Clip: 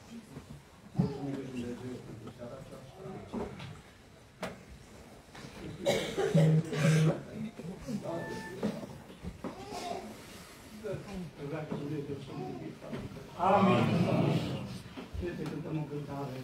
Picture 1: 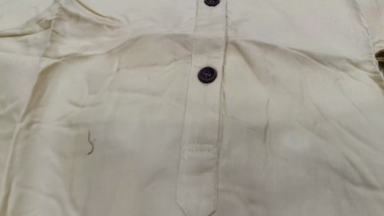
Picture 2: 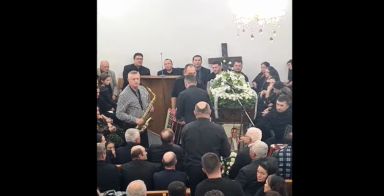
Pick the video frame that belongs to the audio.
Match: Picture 2